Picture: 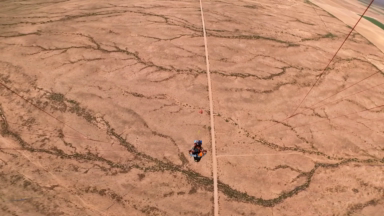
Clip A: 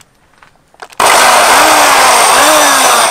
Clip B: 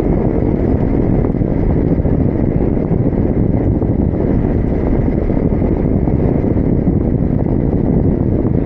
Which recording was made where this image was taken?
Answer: B